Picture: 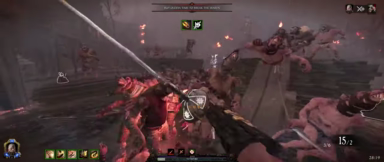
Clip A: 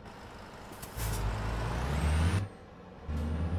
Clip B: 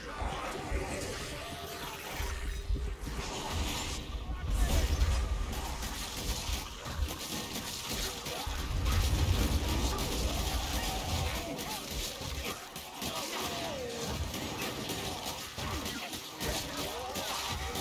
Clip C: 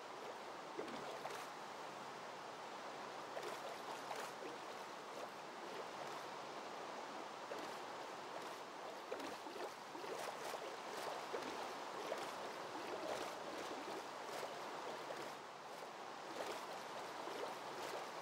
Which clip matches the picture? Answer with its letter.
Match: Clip B